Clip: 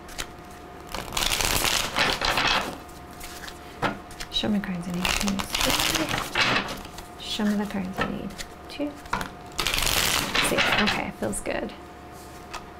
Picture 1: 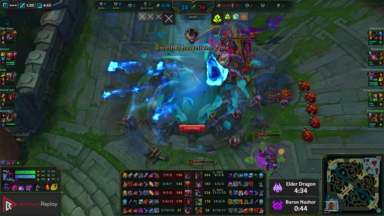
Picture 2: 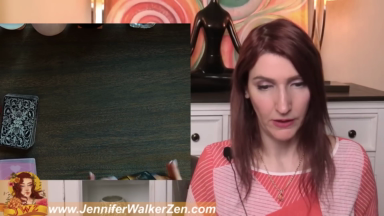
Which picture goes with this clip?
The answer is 2